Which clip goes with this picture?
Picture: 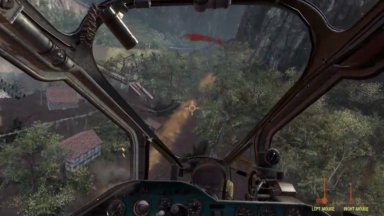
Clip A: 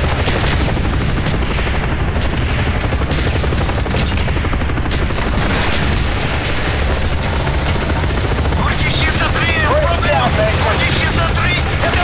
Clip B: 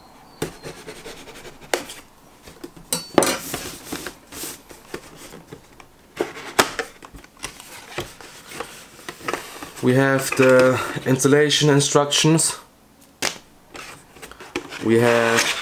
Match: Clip A